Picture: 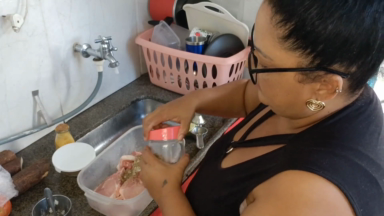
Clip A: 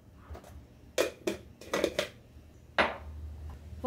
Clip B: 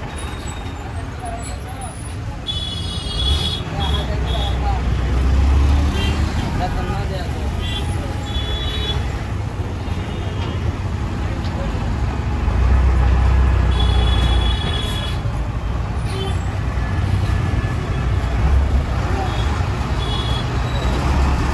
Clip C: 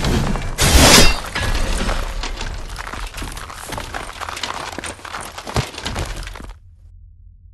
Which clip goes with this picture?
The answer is A